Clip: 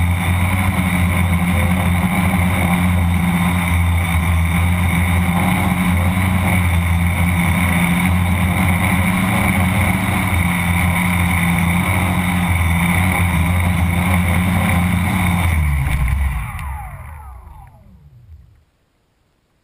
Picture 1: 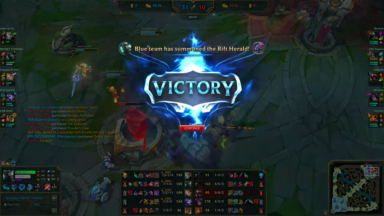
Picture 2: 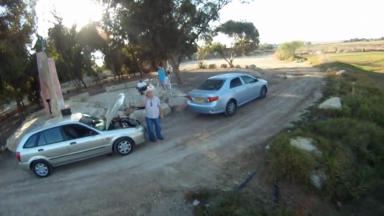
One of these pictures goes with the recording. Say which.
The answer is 2